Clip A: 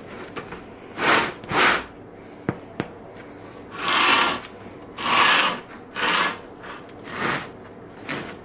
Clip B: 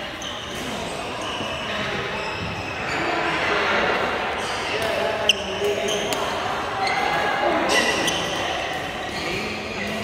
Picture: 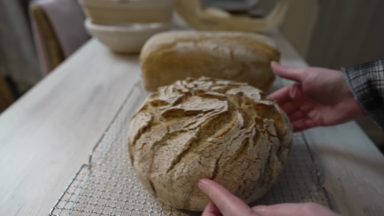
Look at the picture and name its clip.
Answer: A